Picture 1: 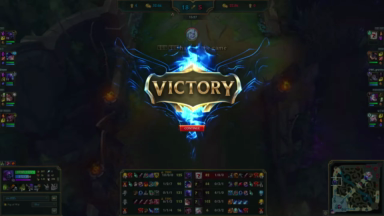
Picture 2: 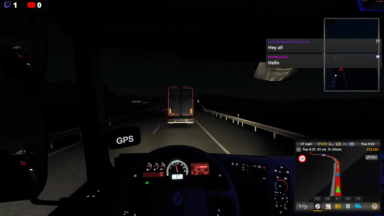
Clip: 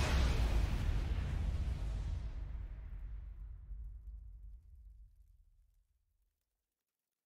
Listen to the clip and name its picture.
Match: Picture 1